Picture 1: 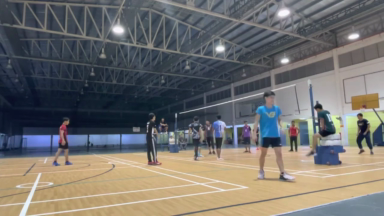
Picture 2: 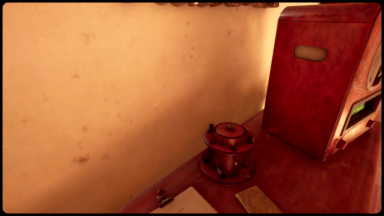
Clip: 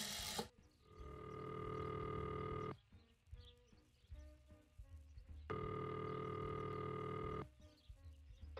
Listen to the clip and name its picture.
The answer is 2